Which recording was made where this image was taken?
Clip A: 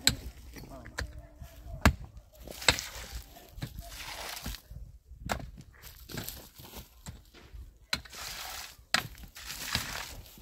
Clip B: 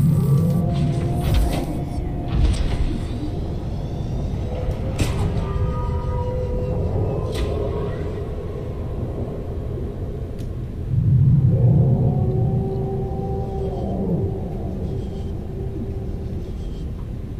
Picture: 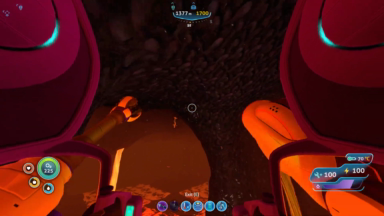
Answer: B